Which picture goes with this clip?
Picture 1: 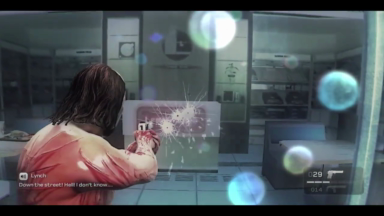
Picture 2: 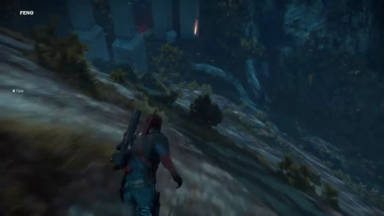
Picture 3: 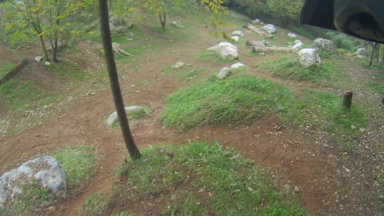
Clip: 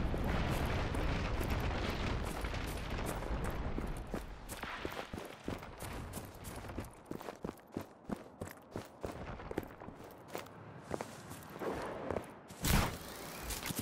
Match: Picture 2